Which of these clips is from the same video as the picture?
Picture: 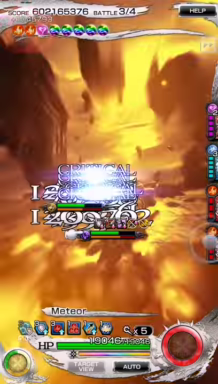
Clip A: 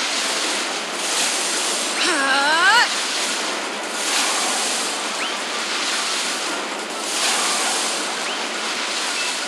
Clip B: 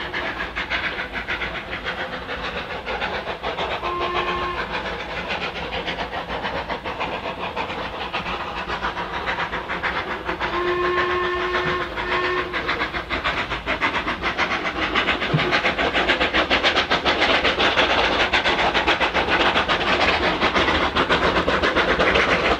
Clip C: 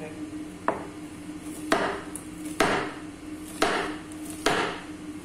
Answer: A